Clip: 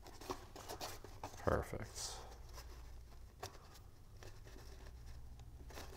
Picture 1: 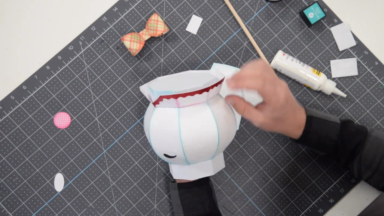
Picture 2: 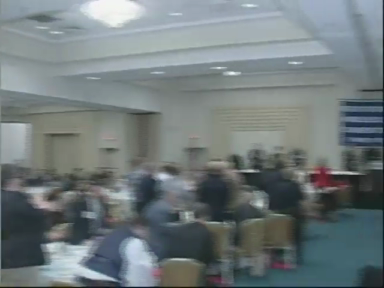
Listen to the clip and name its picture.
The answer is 1